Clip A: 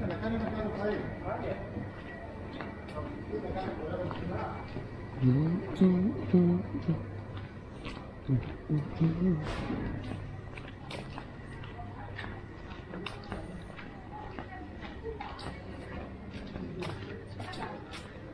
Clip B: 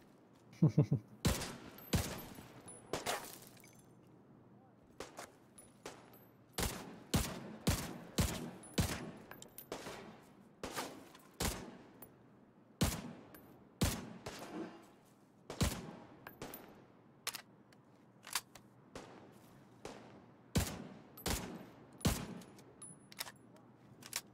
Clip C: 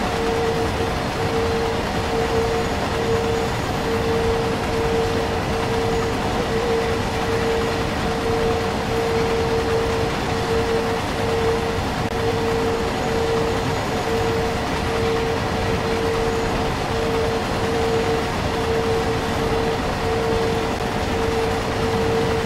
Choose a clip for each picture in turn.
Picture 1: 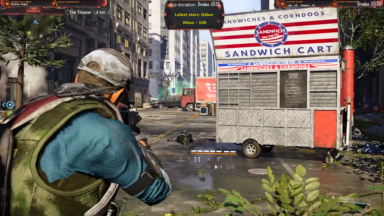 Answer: B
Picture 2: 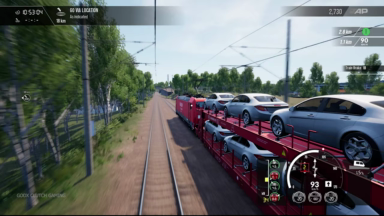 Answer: C